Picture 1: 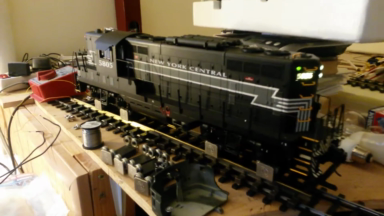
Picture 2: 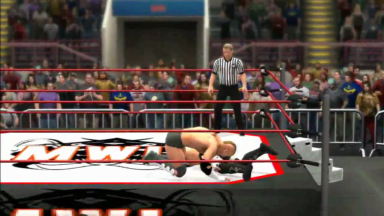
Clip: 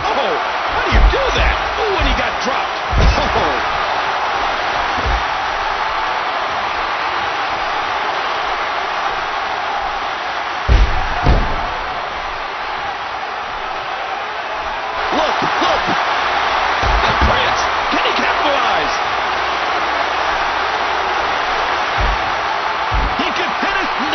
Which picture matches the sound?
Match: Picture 2